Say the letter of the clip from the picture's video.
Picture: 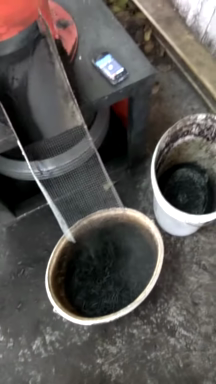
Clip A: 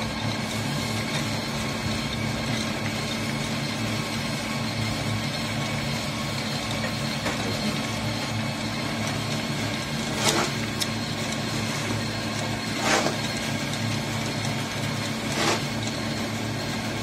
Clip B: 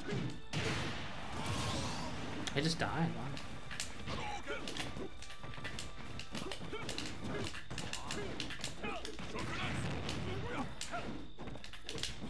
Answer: A